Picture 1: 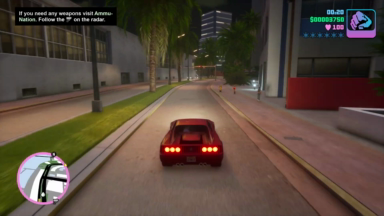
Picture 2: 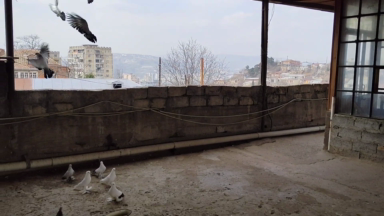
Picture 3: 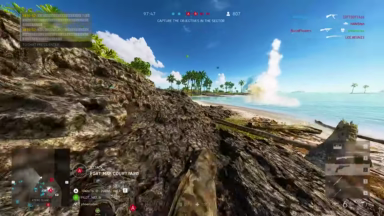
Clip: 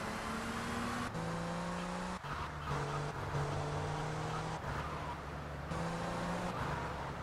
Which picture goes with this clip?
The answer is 1